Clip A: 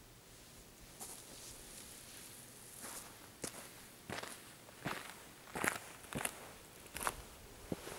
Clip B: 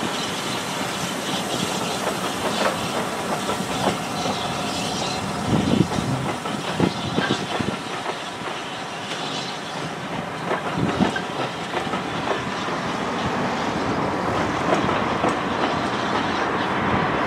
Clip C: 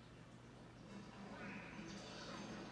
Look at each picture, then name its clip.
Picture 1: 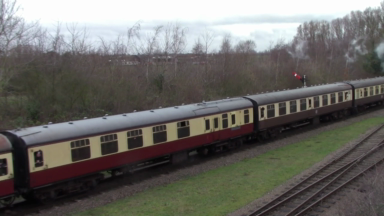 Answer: B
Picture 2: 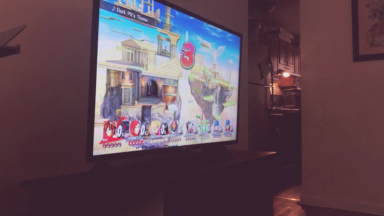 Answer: C